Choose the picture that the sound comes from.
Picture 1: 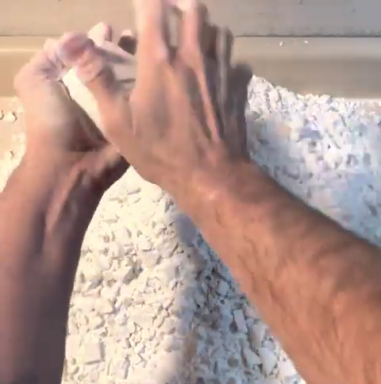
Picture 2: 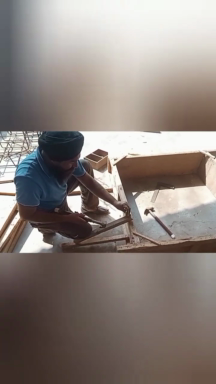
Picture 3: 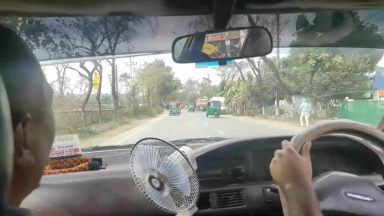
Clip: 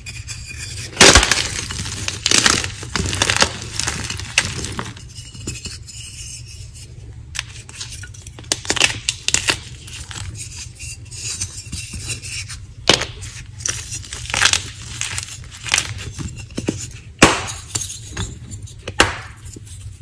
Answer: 1